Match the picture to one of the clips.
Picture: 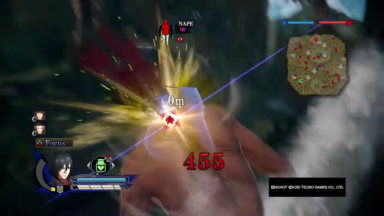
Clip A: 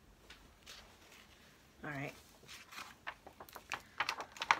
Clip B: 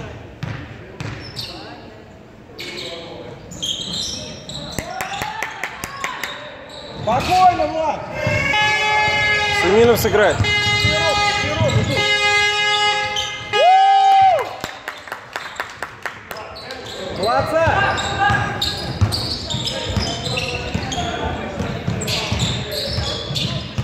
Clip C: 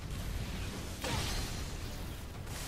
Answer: C